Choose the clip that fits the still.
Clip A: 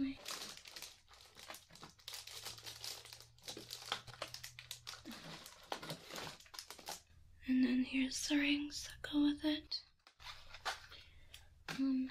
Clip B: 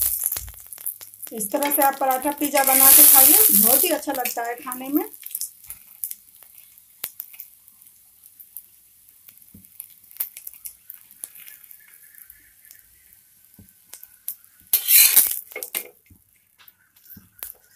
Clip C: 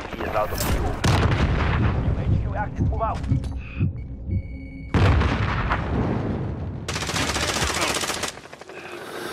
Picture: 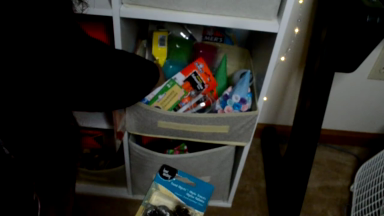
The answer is A